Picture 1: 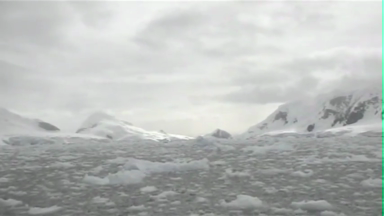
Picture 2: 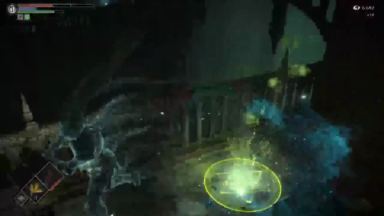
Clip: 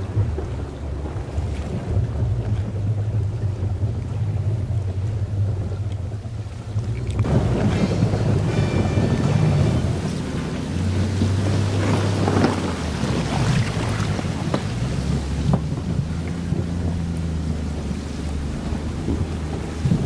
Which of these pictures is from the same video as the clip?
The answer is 1